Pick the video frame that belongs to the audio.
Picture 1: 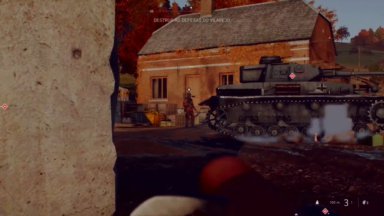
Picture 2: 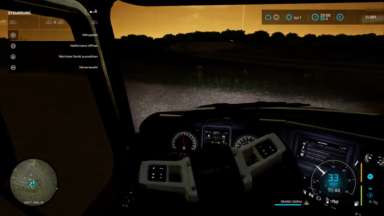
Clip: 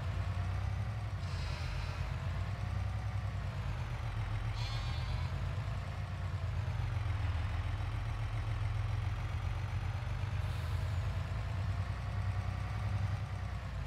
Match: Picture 2